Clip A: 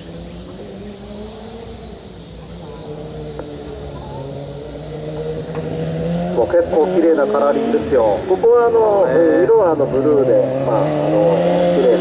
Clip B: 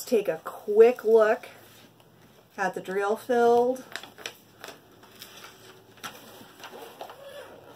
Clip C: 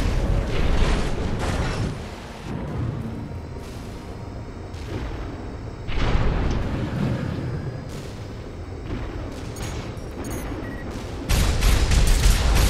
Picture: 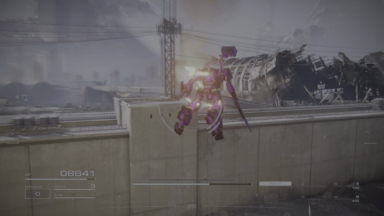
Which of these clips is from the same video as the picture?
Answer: C